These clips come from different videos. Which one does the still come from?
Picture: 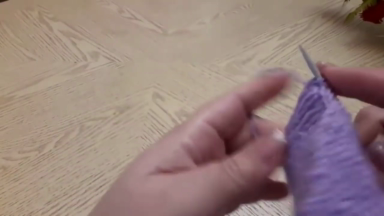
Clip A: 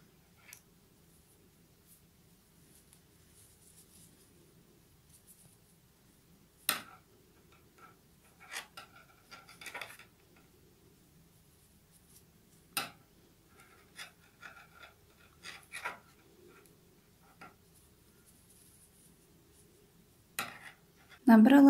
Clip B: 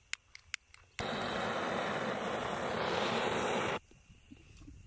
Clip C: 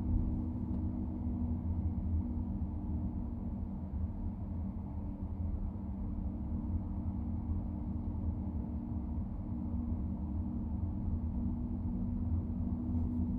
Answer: A